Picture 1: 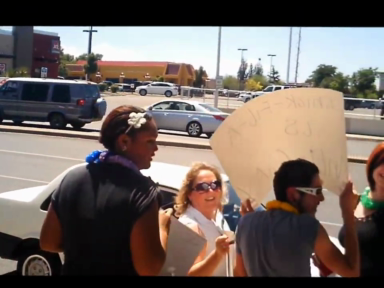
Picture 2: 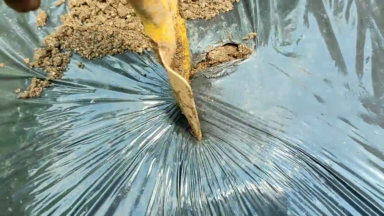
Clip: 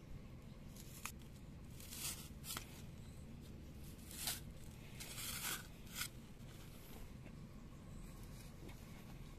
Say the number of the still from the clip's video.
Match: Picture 2